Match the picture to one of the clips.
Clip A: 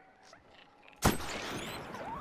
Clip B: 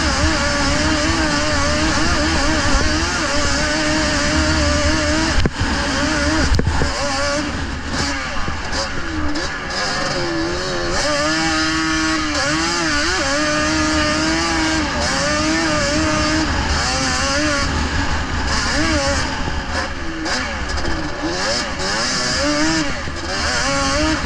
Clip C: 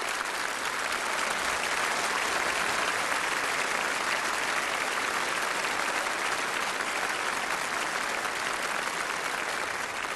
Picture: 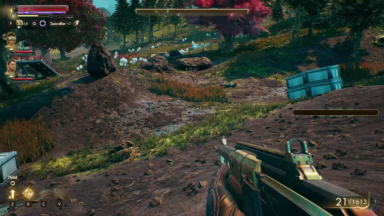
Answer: A